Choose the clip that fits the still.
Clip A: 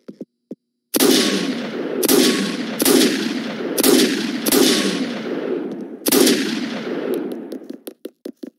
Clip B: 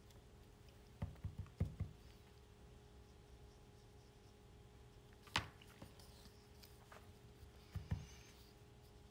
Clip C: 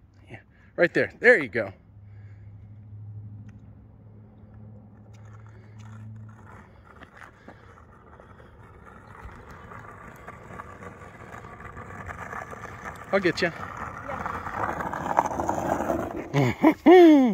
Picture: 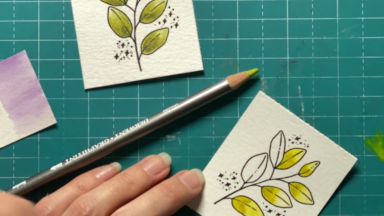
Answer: B